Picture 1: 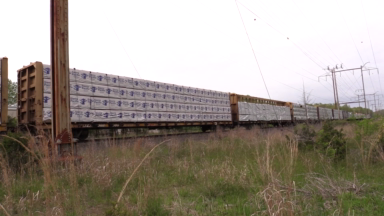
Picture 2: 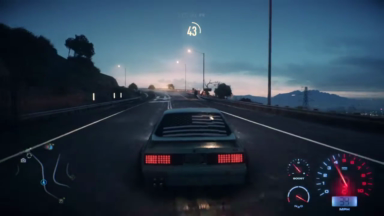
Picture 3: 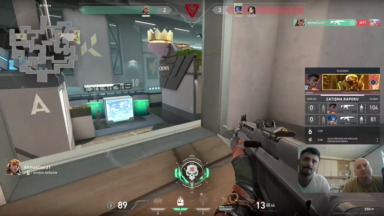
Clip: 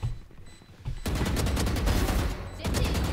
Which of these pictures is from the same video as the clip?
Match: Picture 3